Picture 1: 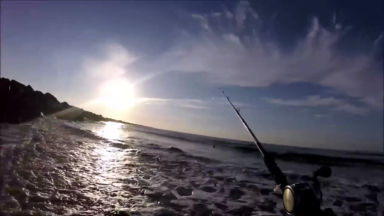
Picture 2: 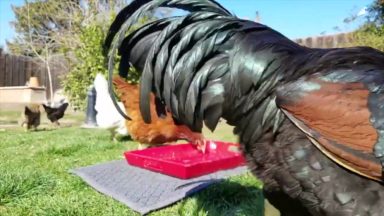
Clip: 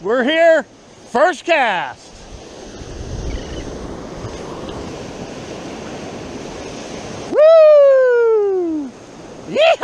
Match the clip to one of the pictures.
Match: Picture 1